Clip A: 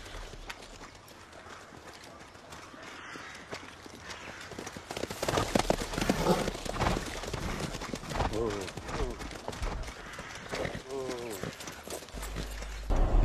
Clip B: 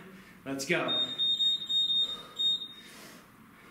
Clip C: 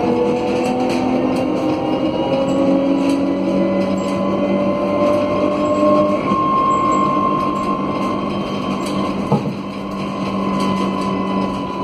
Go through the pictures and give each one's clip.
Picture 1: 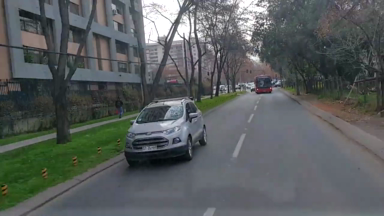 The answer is C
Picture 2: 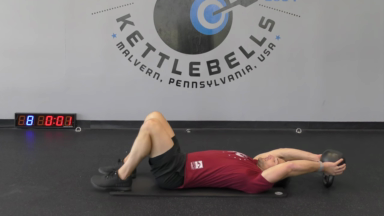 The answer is B